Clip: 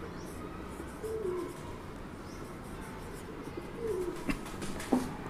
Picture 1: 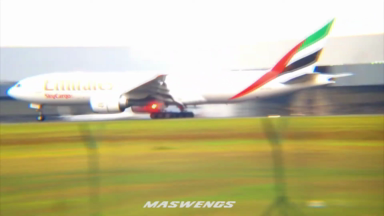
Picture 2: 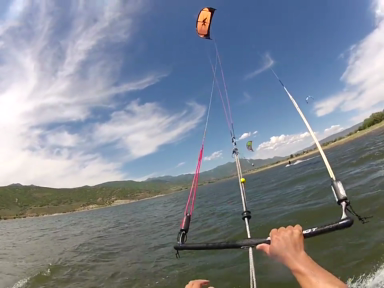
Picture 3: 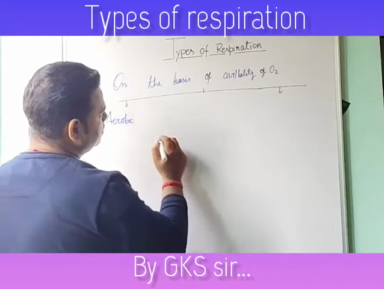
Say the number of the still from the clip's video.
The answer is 3